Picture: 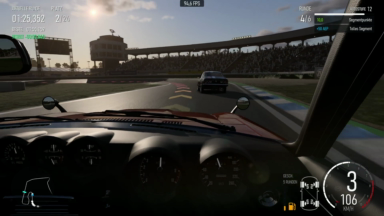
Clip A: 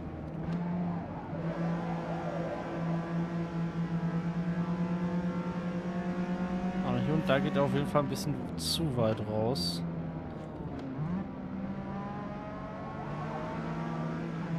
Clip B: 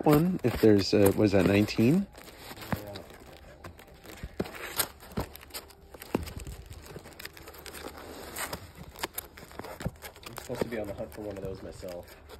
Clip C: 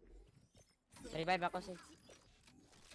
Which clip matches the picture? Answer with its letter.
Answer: A